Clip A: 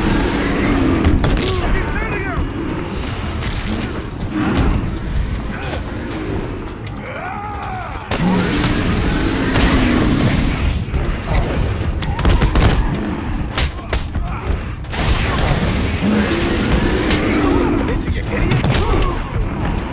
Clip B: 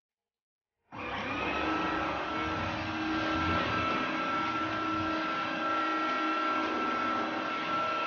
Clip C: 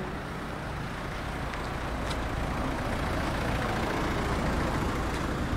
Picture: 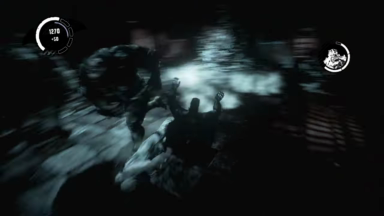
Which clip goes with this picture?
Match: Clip A